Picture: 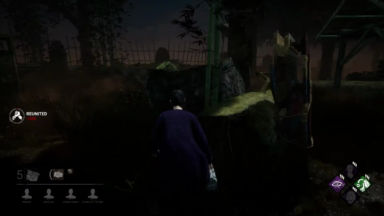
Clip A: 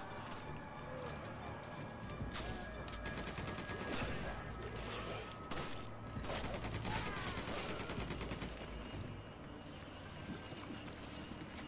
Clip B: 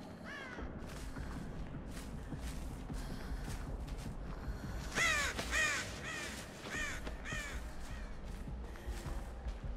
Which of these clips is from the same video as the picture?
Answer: B